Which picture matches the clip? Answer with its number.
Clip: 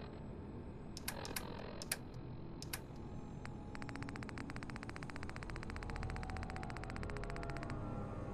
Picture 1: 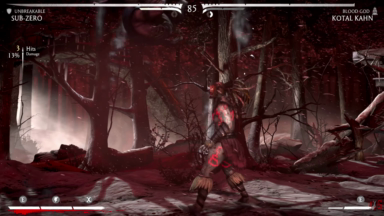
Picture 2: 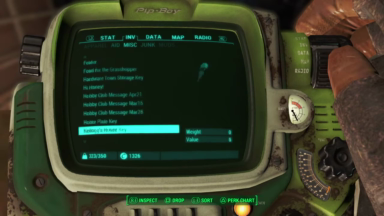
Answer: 2